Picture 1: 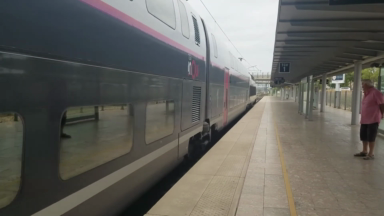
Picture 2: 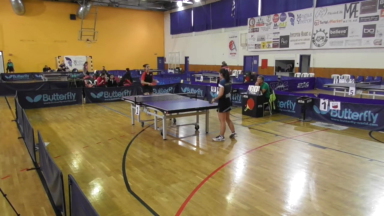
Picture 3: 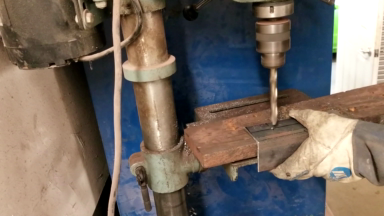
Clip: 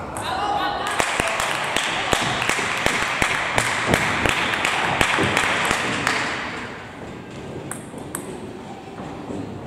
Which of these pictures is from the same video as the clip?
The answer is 2